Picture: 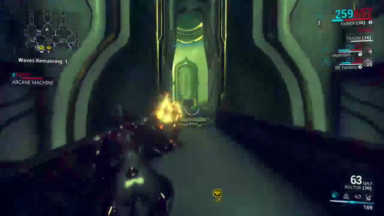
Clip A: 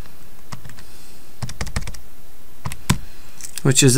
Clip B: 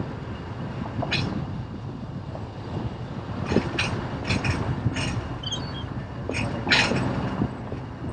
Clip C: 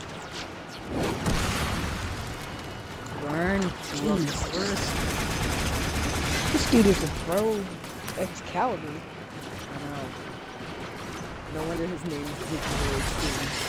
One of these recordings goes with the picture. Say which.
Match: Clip C